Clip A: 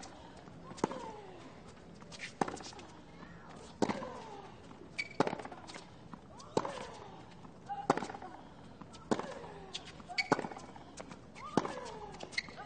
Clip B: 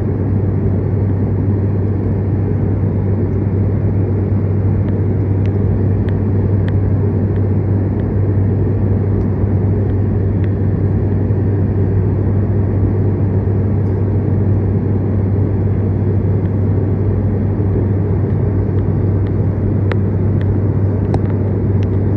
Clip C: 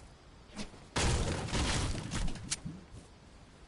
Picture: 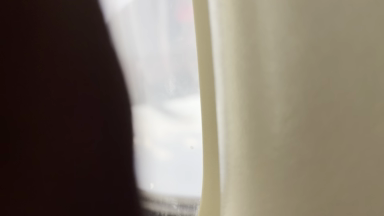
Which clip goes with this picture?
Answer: B